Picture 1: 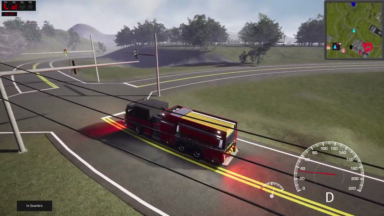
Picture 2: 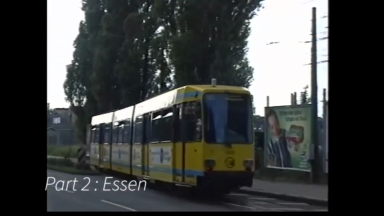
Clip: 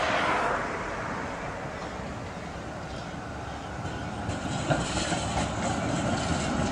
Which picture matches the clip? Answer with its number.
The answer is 2